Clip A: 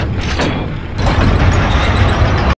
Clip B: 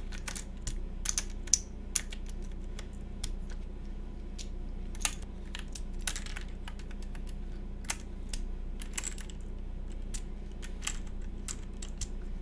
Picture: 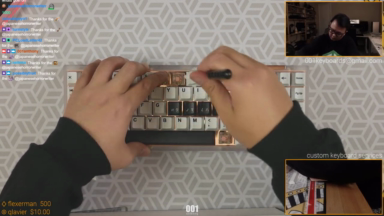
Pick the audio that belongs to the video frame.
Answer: B